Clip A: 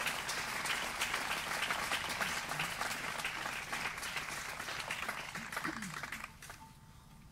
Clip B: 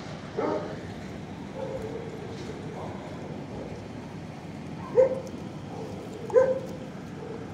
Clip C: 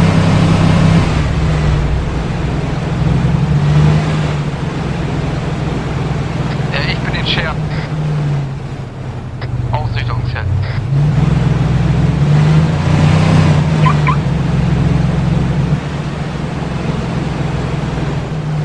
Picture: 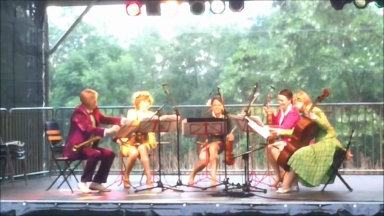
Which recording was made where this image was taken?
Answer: A